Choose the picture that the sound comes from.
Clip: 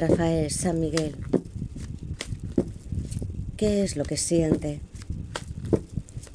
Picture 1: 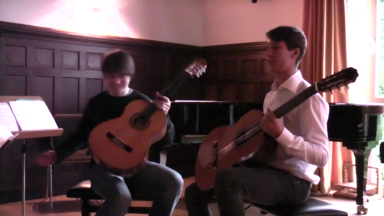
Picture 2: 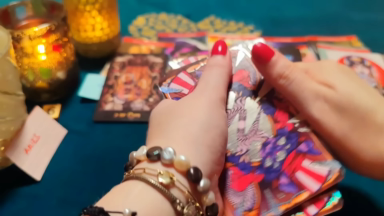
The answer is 2